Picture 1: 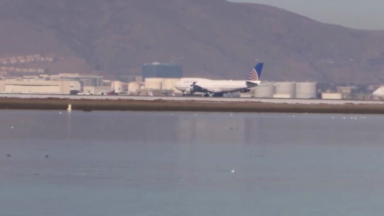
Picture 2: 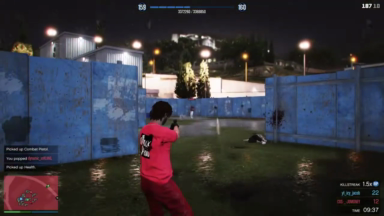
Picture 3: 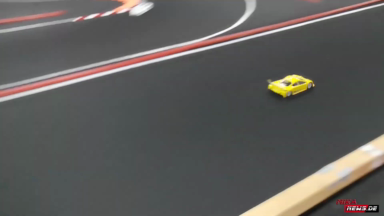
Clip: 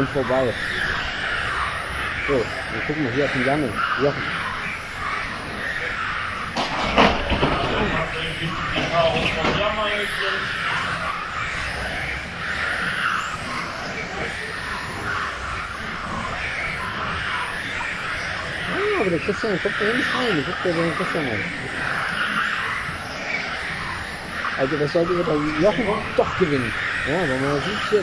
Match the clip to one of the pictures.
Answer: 3